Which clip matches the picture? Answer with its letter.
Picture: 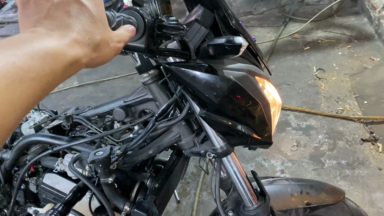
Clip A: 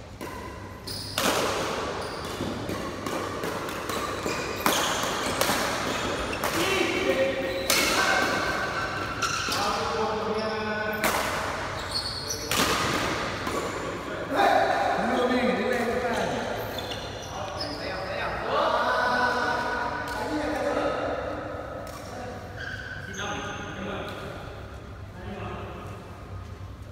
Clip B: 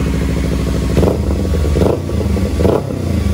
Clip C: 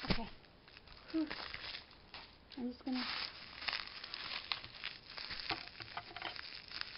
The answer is B